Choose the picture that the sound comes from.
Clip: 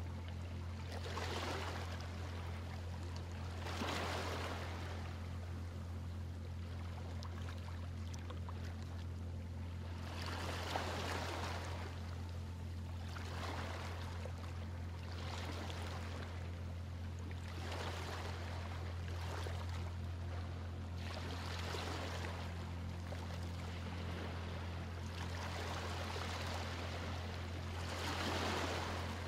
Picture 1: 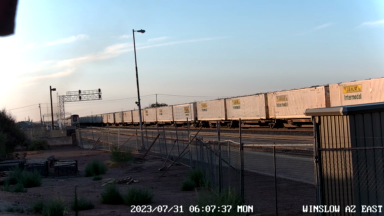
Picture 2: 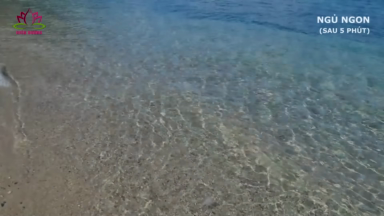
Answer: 2